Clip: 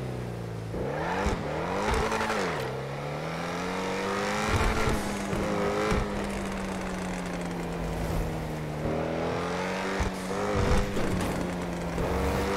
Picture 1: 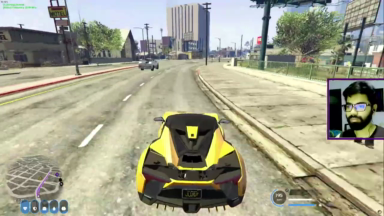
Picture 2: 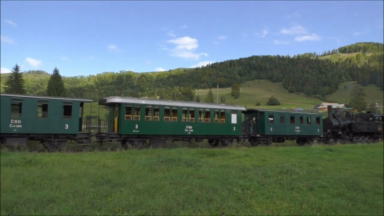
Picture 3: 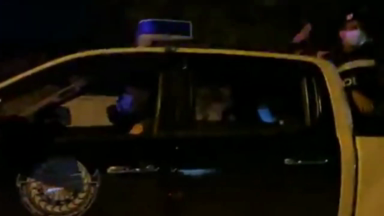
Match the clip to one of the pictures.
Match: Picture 1